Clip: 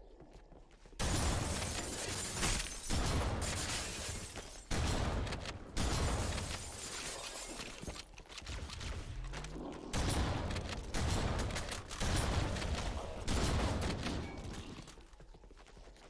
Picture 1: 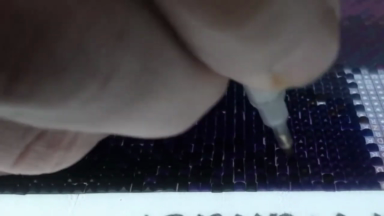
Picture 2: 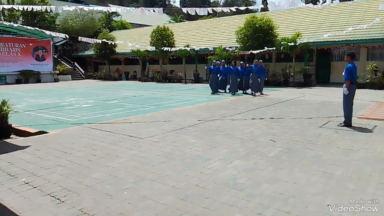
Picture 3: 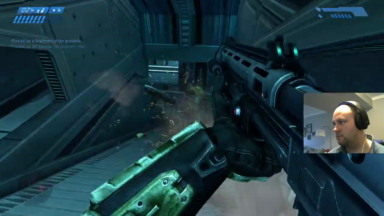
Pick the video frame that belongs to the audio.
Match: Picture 3